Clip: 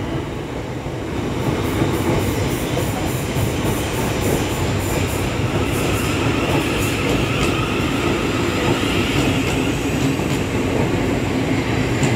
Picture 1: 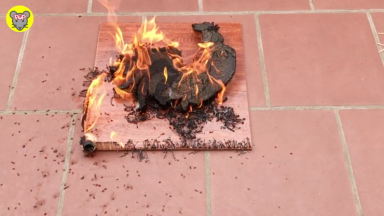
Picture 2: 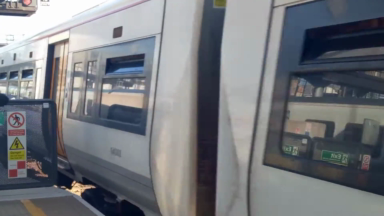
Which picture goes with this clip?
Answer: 2